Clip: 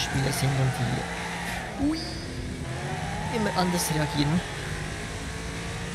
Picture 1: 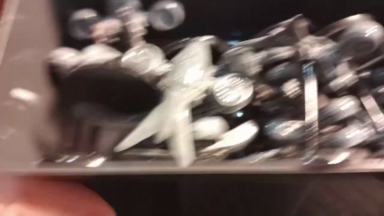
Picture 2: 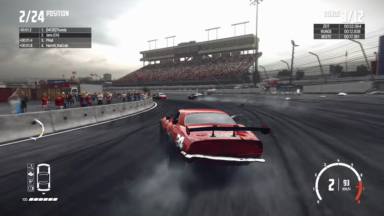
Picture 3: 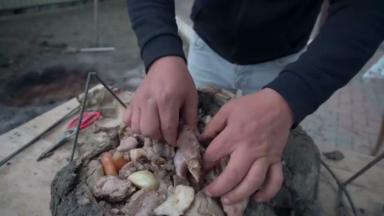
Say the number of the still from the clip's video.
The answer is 2